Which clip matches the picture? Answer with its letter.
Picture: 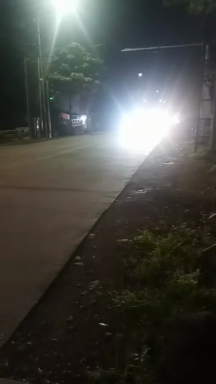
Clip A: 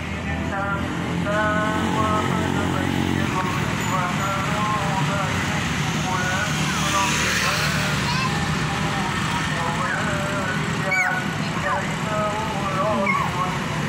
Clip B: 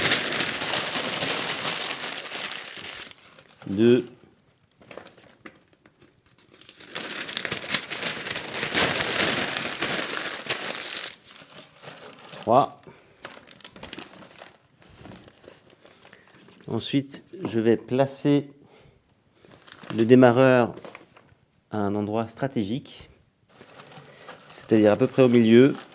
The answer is A